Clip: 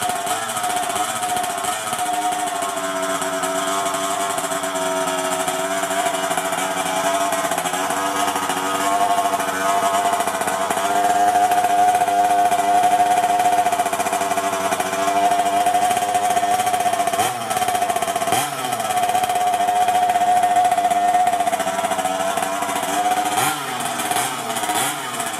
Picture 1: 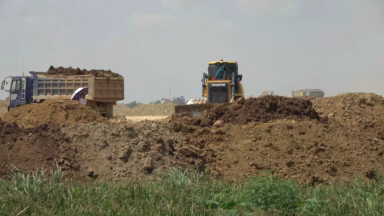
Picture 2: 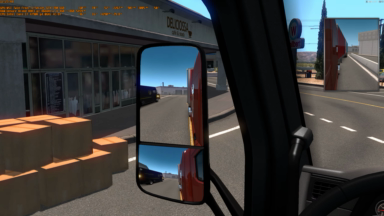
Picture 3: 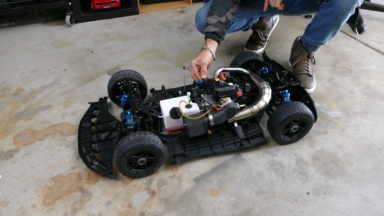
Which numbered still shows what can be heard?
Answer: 3